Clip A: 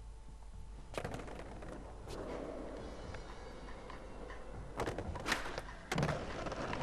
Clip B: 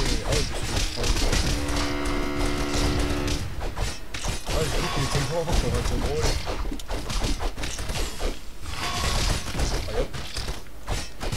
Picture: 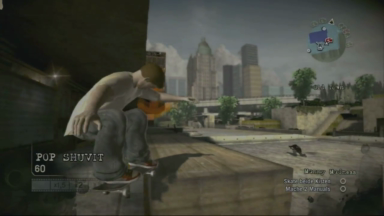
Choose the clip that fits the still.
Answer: A